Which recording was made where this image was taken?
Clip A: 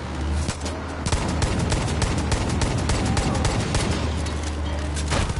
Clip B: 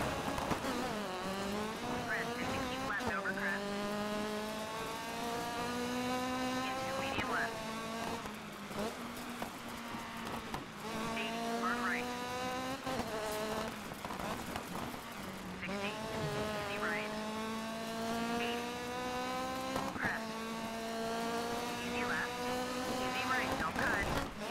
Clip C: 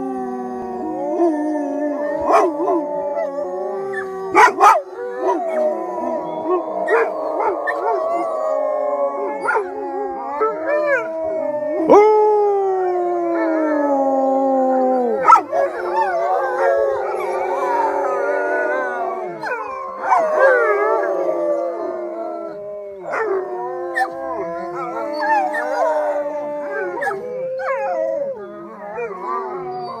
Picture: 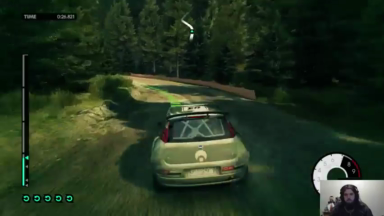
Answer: B